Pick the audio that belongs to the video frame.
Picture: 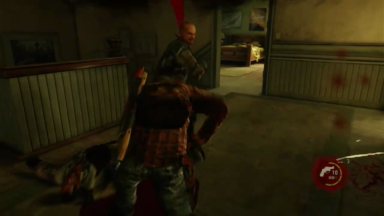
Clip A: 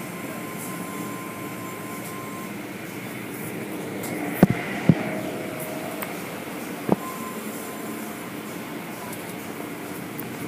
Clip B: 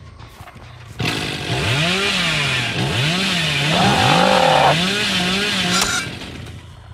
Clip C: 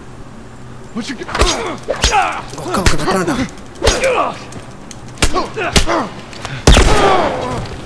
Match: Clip C